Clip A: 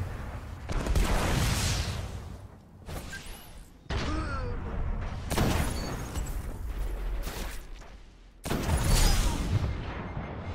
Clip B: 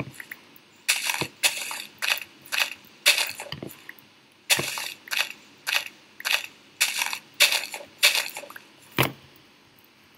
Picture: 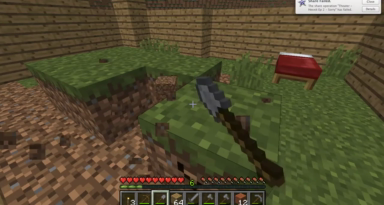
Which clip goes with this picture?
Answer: B